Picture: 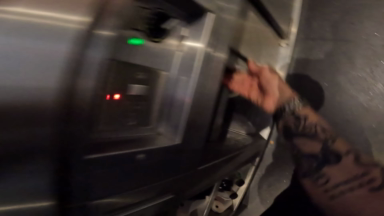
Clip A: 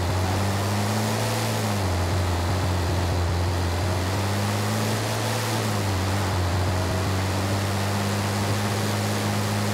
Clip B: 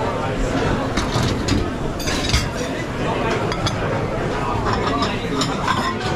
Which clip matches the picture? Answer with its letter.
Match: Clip B